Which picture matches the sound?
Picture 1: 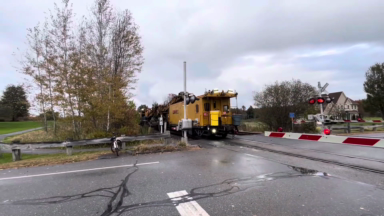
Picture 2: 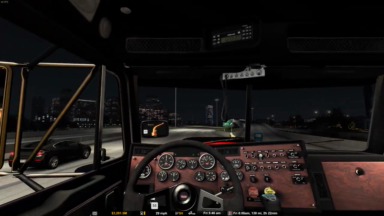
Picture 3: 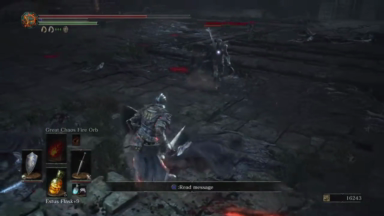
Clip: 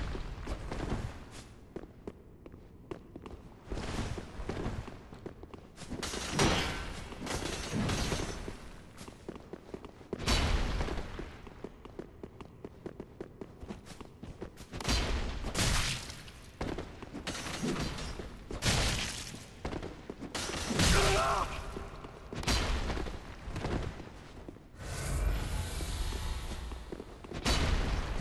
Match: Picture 3